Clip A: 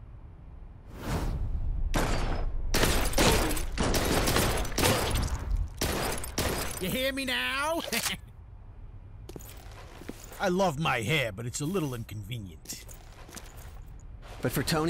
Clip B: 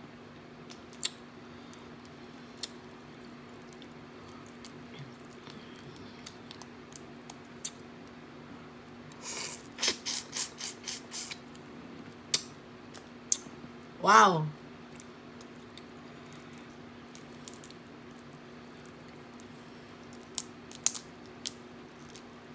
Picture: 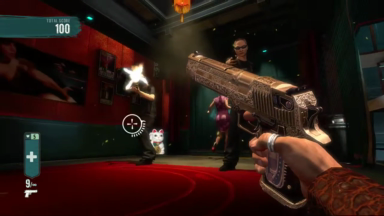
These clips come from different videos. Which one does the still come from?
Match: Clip A